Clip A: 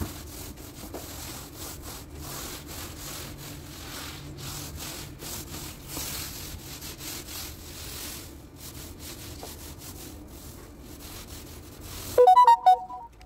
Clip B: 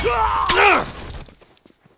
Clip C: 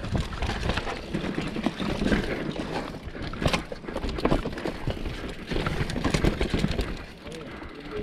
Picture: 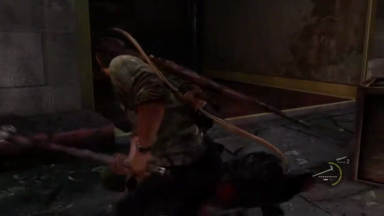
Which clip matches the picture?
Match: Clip B